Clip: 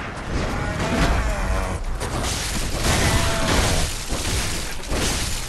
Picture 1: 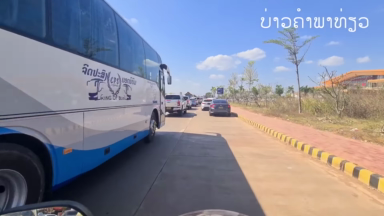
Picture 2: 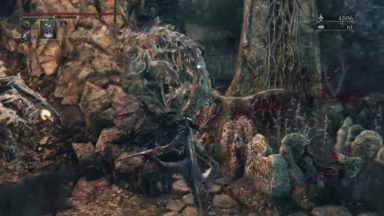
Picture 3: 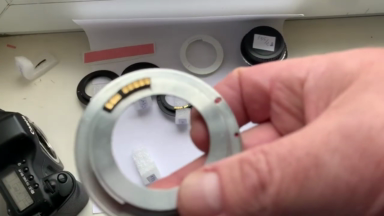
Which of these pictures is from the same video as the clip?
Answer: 2